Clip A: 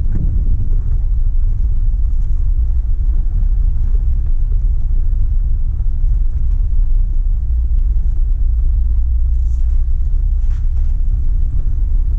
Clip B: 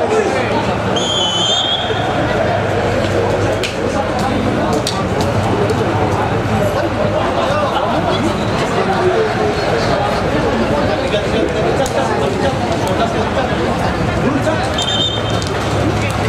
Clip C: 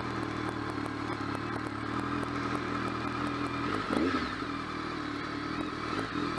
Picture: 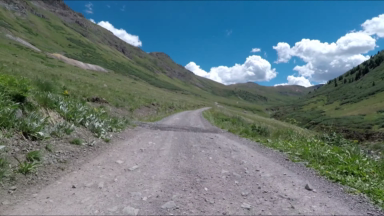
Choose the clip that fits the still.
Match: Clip A